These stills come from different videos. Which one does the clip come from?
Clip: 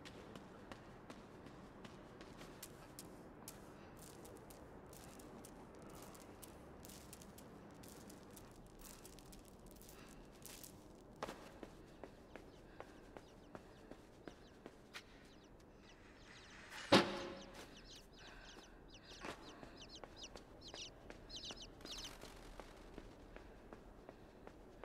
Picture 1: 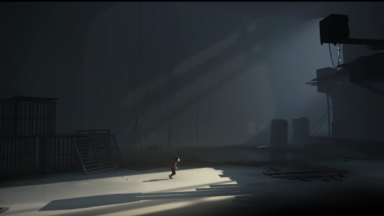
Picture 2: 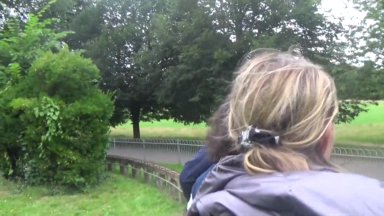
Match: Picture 1